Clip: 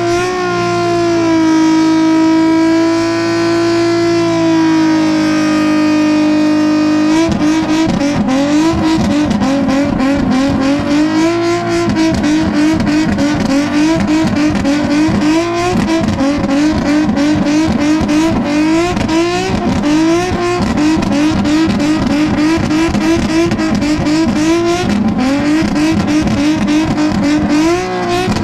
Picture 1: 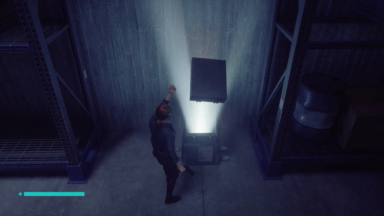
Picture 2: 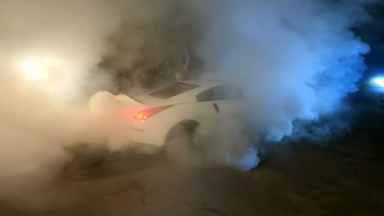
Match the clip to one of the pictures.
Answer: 2